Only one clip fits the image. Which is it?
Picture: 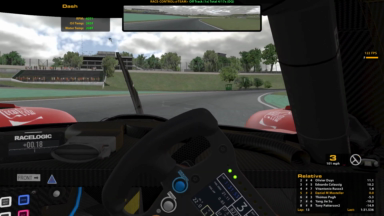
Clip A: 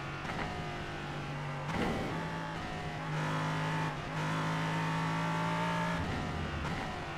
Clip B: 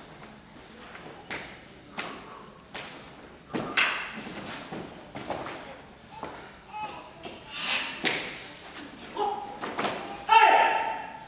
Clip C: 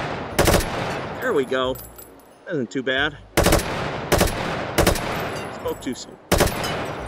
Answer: A